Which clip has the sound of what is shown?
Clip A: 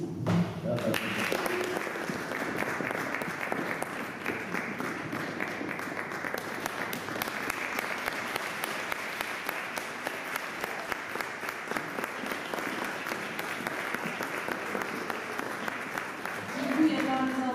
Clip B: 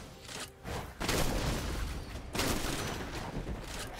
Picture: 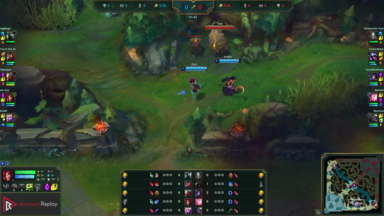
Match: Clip B